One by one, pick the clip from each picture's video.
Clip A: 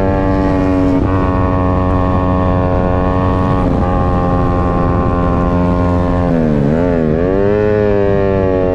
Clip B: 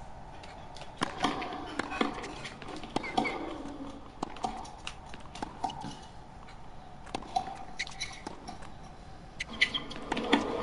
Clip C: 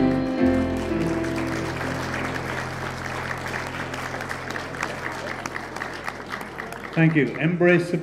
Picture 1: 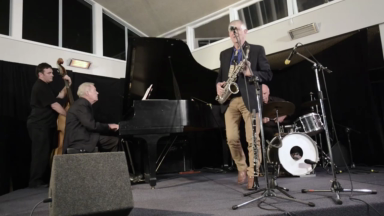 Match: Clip C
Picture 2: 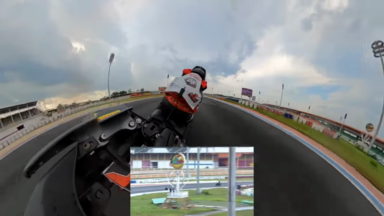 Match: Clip A